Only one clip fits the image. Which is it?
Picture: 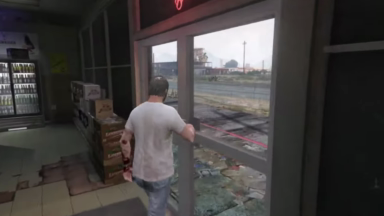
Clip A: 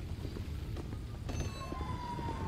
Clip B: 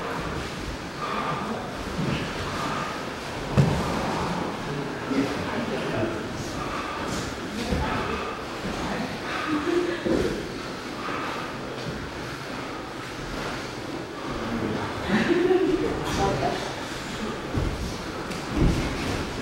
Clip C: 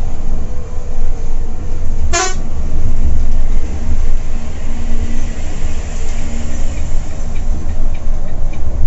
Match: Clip A